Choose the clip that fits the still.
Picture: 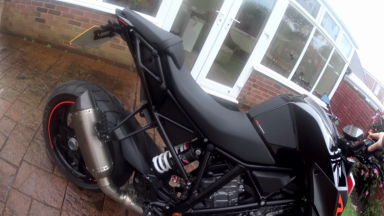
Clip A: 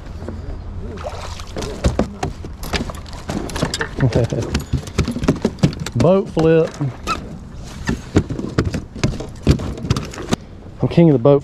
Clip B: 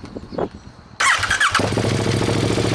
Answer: B